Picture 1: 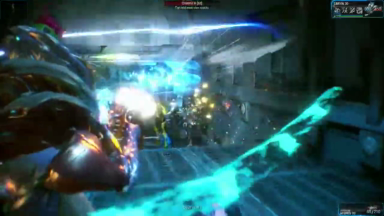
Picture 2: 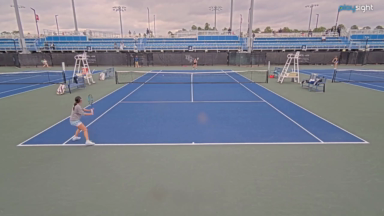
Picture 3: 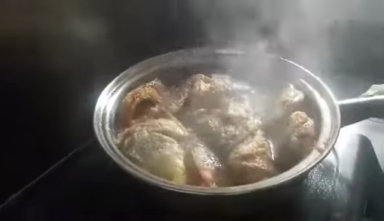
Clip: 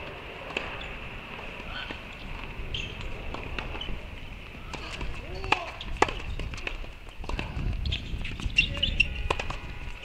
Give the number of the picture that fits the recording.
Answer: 2